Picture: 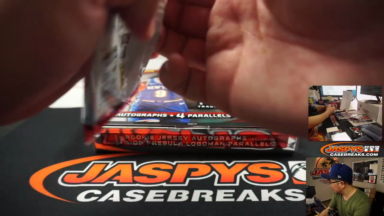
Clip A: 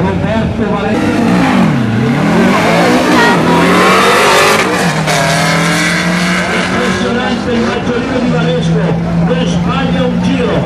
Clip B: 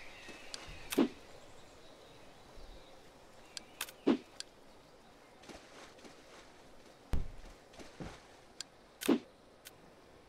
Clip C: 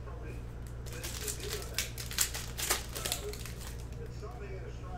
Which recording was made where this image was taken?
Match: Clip C